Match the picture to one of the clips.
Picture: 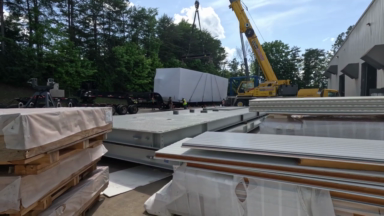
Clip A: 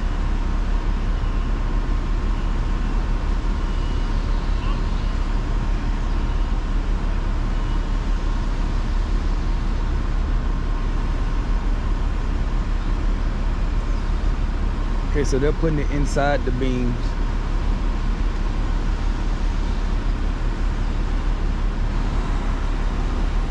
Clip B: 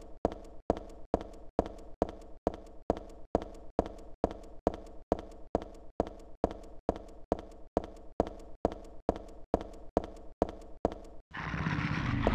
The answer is A